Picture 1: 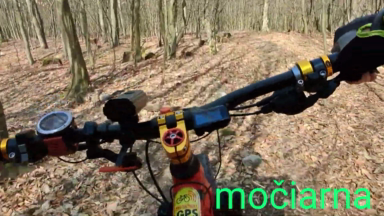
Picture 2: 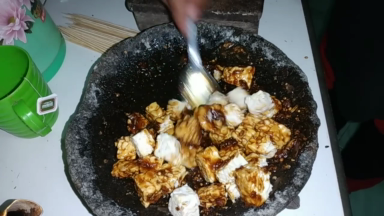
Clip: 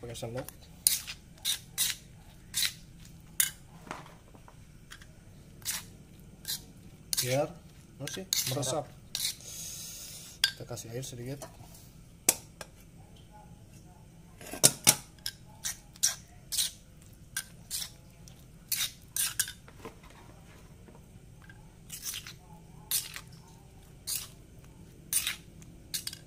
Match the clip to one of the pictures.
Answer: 2